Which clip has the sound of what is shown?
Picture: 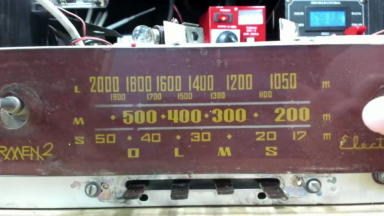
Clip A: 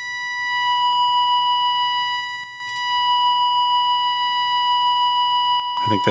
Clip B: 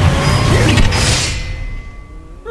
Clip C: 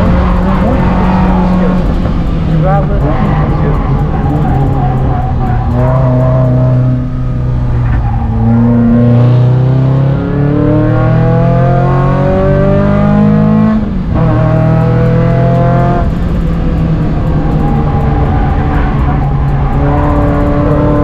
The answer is A